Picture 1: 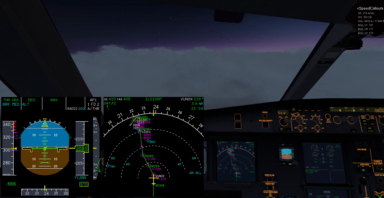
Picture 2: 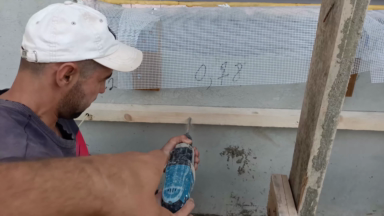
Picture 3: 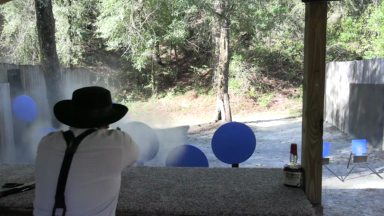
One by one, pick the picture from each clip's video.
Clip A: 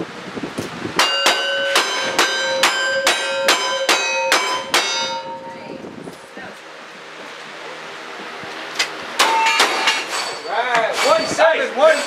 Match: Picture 3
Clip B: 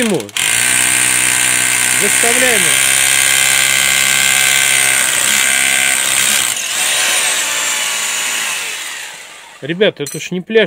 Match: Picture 2